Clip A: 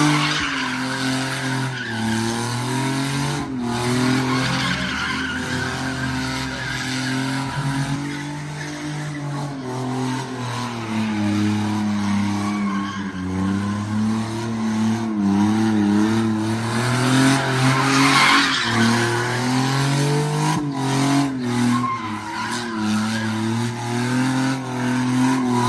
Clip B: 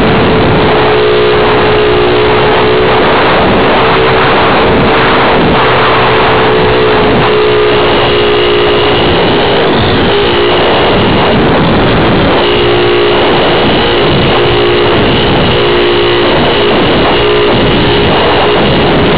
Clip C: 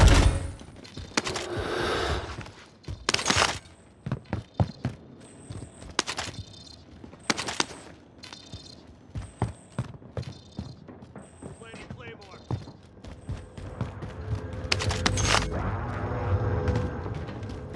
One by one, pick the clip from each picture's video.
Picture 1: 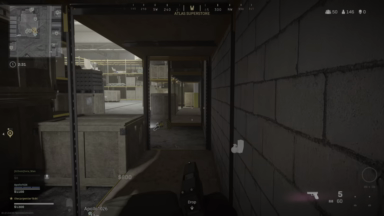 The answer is C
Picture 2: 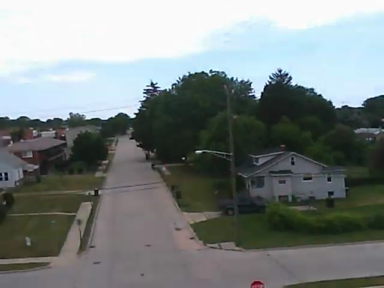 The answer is B